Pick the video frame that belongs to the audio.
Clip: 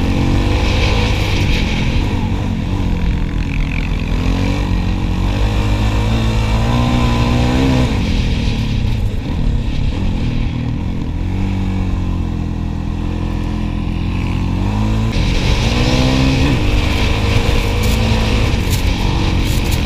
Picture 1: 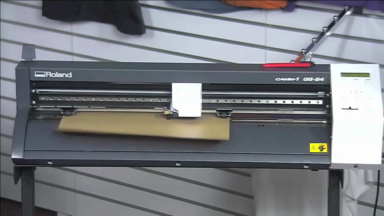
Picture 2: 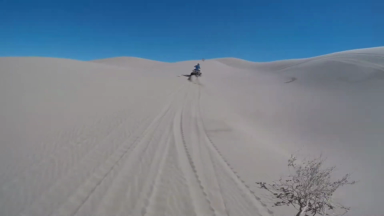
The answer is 2